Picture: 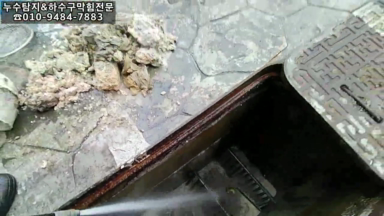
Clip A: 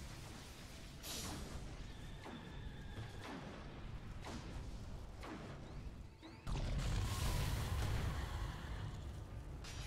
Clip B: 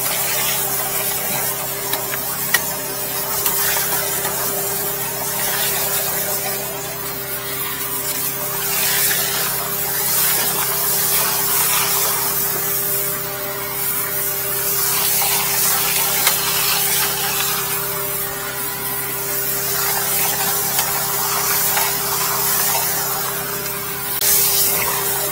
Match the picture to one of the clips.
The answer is B